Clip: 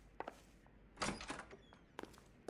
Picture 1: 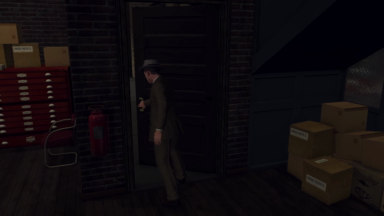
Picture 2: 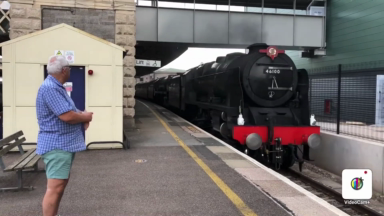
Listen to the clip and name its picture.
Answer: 1